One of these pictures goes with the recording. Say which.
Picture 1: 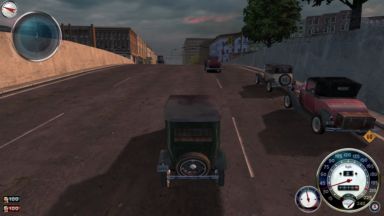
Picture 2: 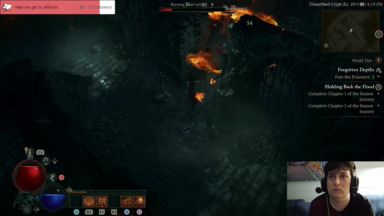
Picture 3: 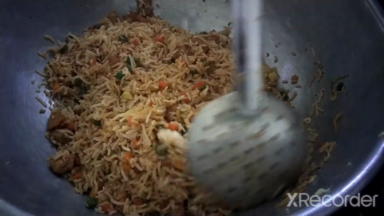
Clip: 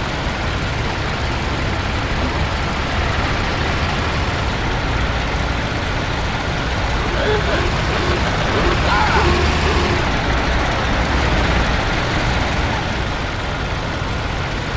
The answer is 1